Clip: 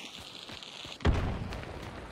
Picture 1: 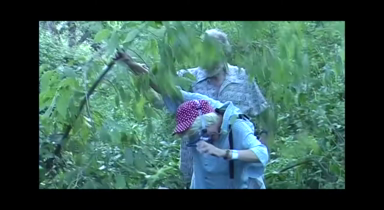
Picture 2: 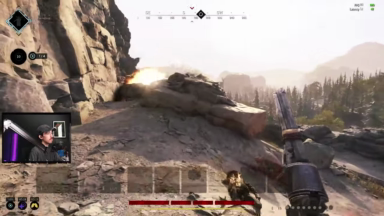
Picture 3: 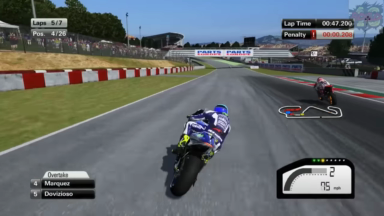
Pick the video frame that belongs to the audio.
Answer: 2